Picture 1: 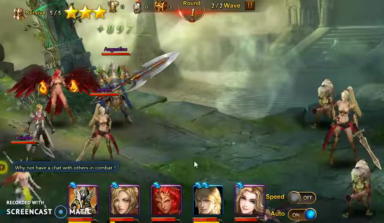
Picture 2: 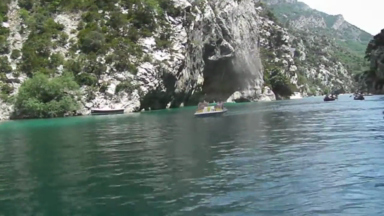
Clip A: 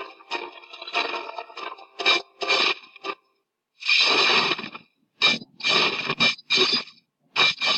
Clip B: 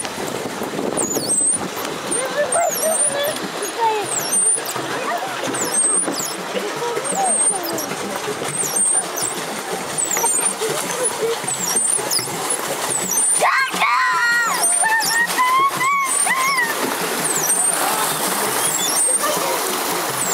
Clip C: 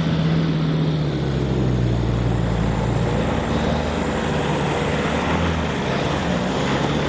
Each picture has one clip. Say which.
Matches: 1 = A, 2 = B